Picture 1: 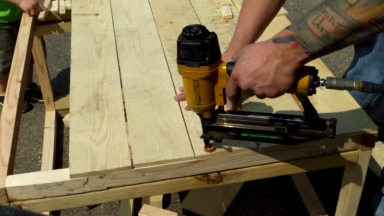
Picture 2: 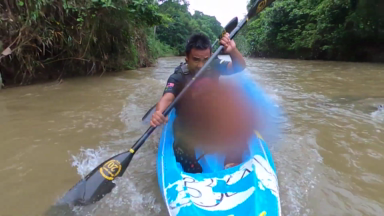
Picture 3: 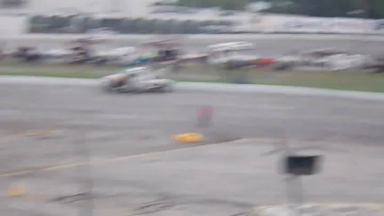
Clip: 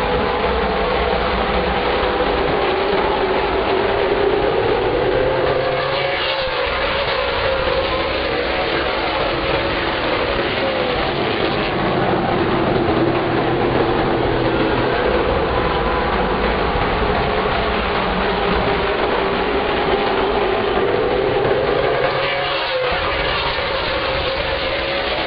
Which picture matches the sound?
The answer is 3